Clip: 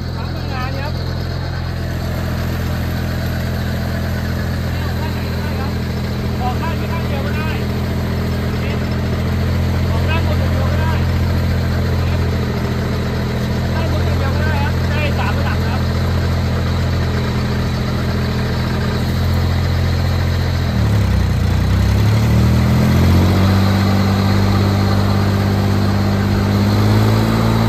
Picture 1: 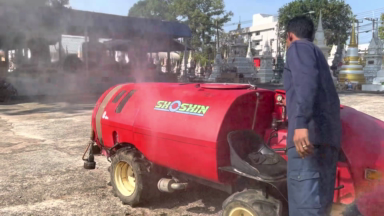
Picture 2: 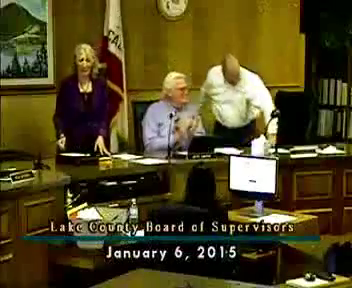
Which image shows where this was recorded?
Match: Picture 1